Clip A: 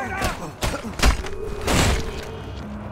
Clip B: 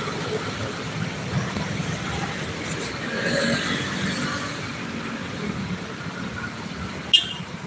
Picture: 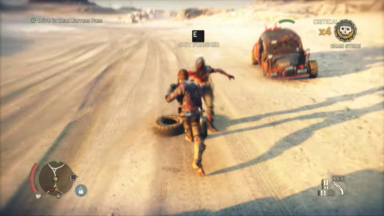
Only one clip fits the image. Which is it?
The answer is A